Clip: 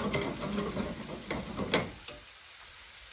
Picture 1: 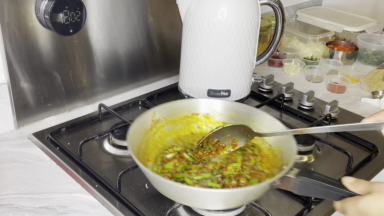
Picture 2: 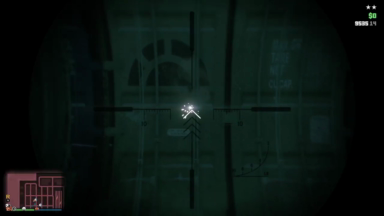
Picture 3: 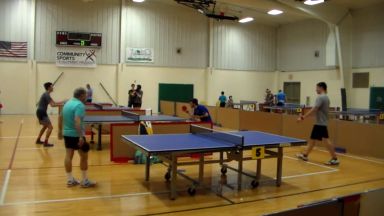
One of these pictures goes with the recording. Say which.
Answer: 1